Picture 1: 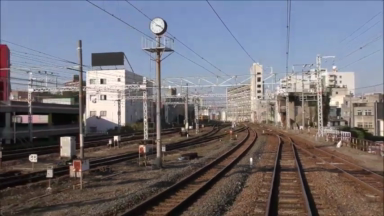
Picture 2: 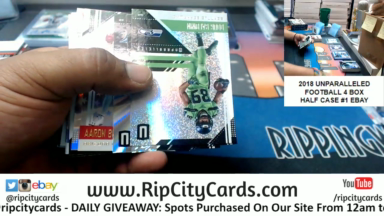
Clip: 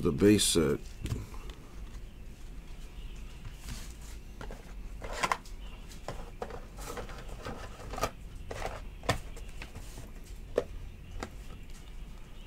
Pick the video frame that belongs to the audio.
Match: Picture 2